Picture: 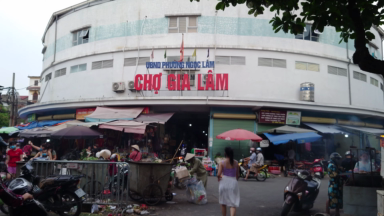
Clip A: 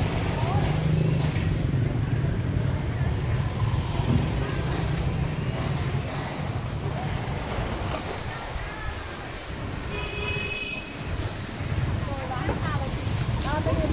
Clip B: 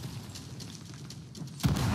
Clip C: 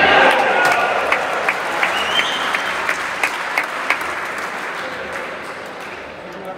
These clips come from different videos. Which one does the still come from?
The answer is A